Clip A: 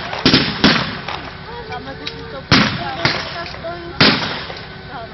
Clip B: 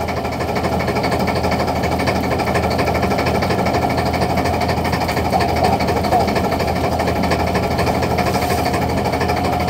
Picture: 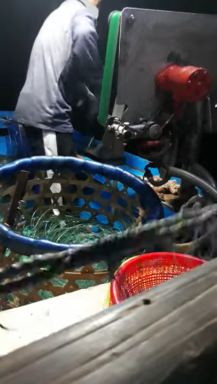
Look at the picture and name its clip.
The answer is B